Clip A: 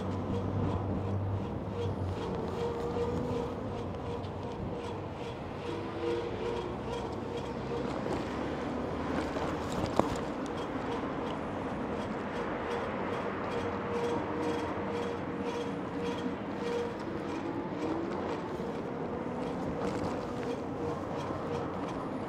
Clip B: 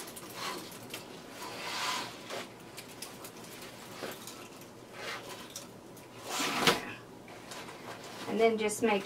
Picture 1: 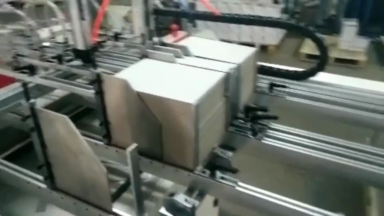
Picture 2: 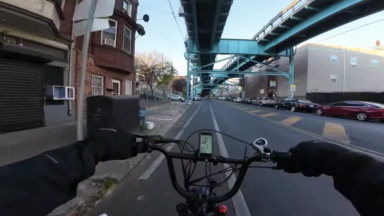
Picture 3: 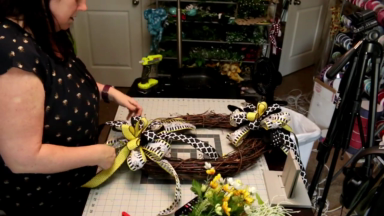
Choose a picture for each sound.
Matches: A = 2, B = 3